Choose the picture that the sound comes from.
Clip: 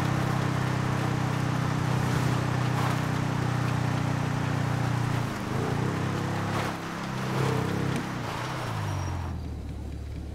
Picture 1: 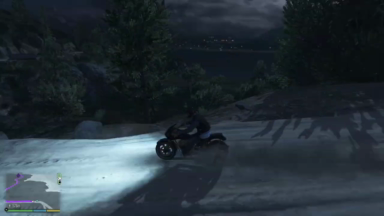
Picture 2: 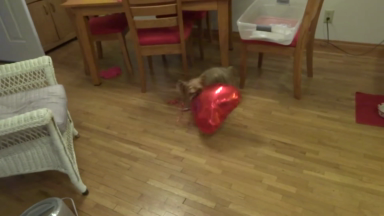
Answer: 1